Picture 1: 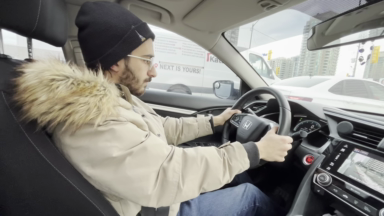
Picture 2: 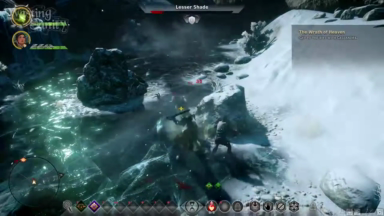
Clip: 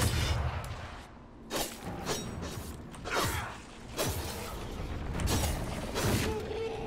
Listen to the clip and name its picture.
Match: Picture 2